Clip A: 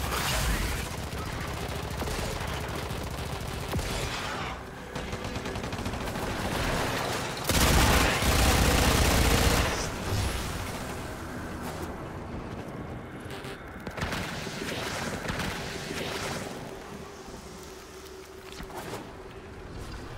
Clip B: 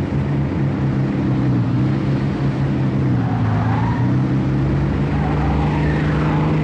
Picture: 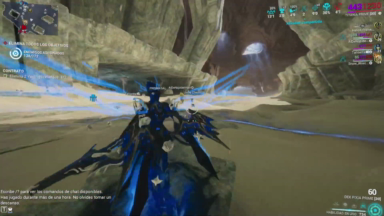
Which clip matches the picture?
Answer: A